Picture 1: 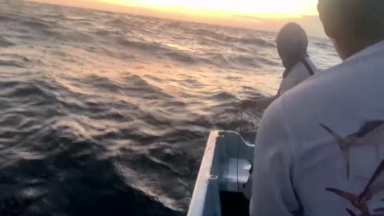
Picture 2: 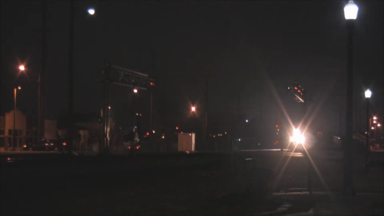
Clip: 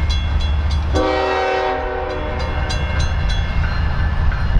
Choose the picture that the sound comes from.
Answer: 2